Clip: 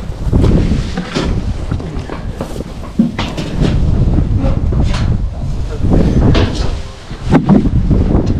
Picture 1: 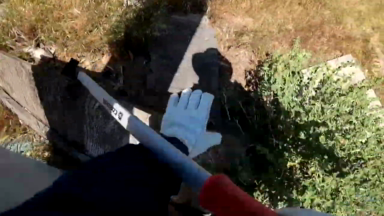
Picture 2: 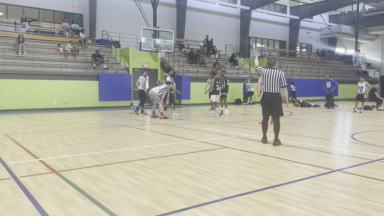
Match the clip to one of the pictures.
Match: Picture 1